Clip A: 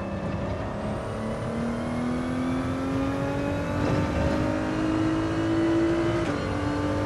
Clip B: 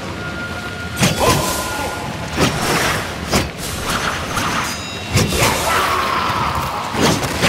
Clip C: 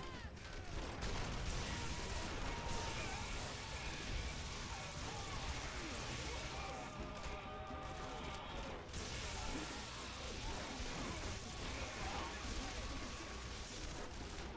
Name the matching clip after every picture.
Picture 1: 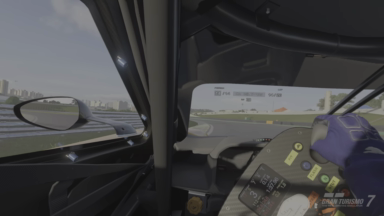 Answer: A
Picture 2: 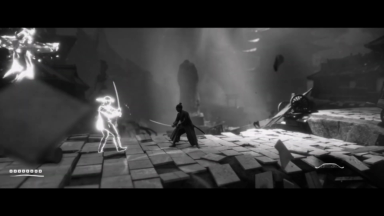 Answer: B